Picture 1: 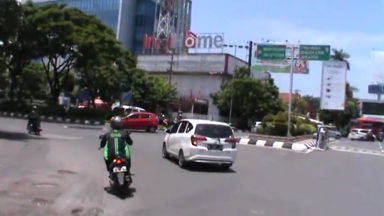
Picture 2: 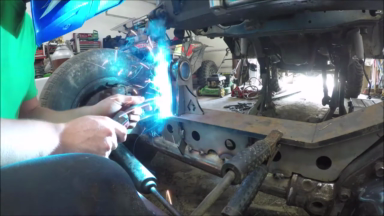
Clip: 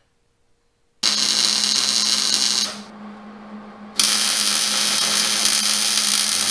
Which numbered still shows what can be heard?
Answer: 2